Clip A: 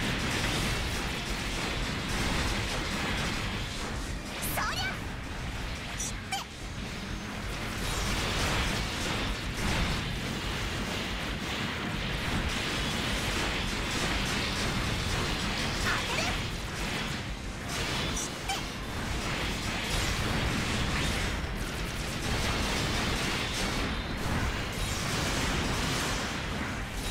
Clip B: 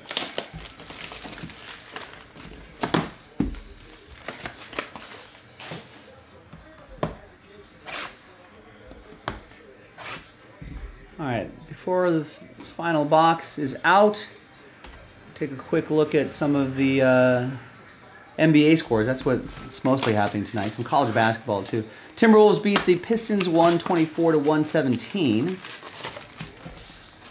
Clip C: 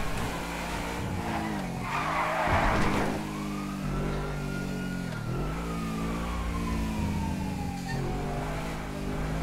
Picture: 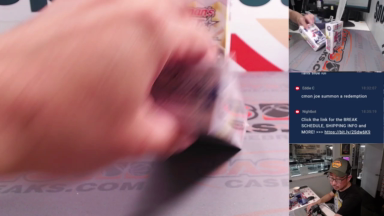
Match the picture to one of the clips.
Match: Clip B